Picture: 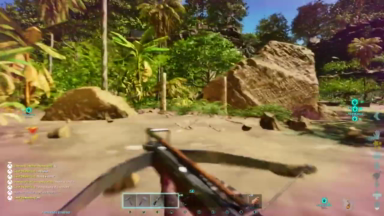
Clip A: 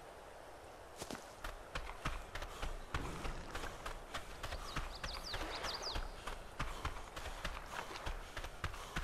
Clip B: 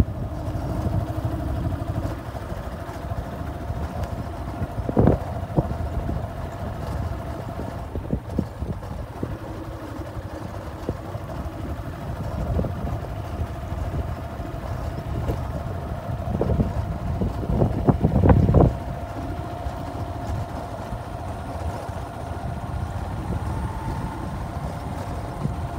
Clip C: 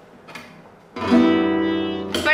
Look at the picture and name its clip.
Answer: A